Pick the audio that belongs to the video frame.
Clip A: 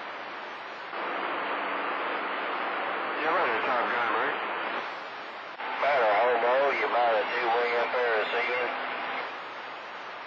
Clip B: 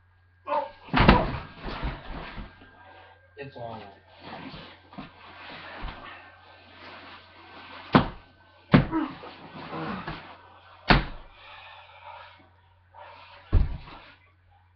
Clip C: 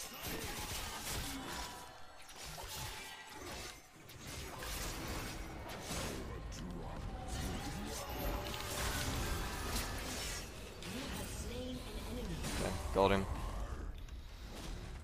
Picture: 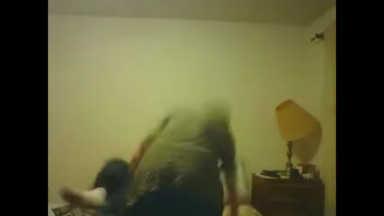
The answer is B